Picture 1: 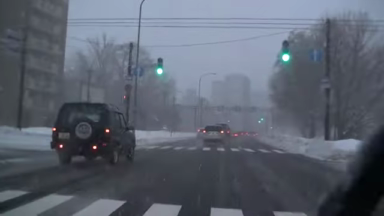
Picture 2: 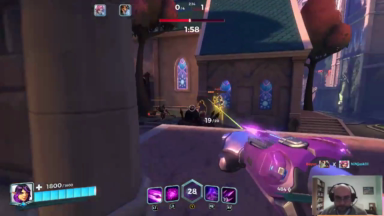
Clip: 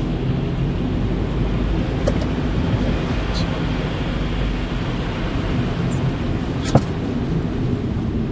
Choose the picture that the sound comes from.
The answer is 1